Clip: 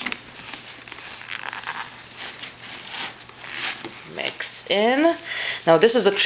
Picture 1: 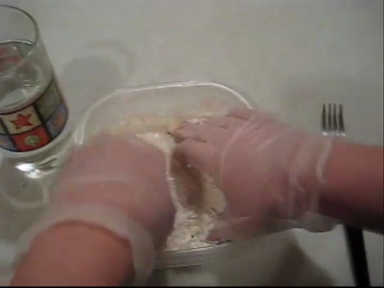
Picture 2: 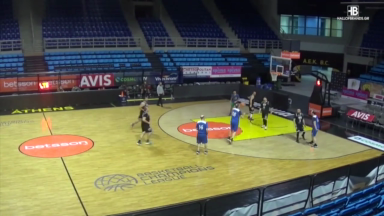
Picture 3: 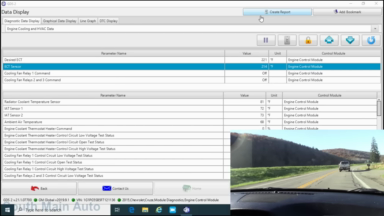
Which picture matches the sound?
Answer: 1